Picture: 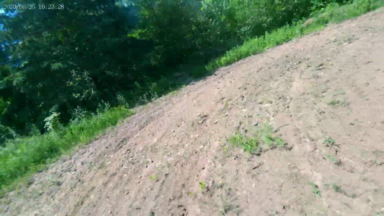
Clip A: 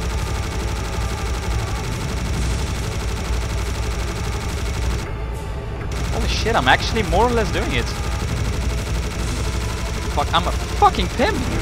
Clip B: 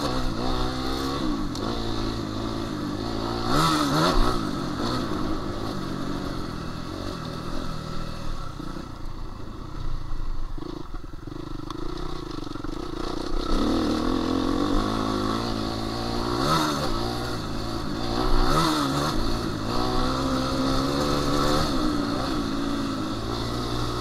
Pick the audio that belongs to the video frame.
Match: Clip B